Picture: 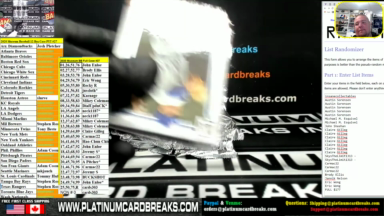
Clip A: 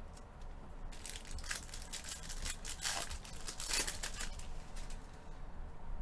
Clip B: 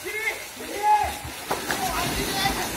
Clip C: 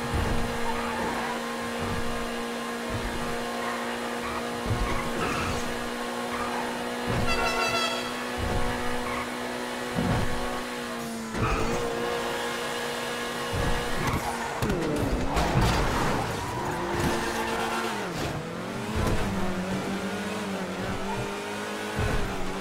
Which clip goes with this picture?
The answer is A